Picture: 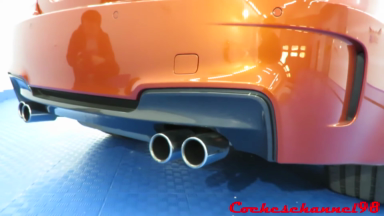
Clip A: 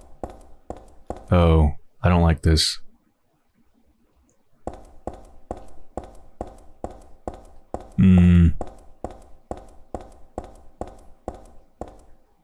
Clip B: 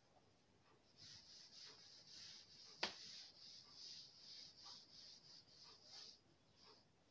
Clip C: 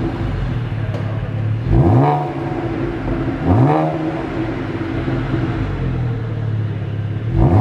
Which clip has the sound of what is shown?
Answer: C